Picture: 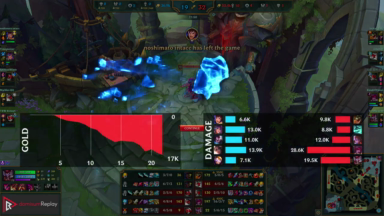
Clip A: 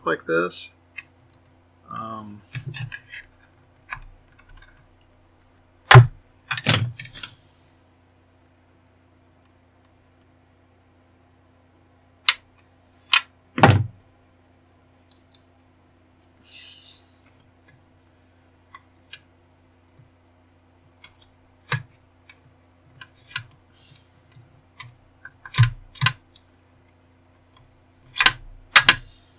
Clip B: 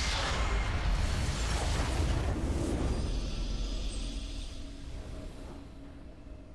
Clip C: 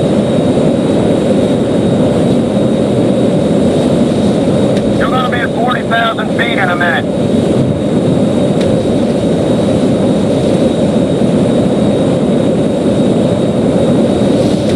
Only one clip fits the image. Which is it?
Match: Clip B